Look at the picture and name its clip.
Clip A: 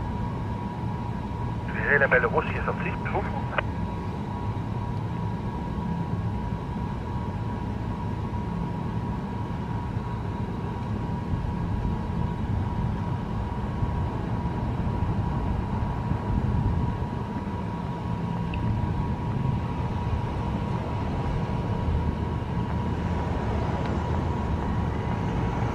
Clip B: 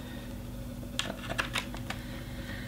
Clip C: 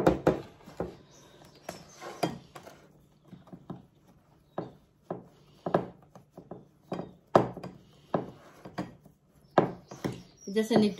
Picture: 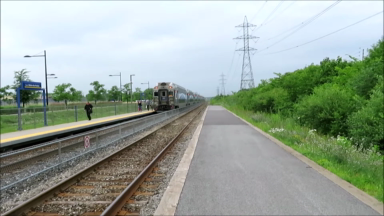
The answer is A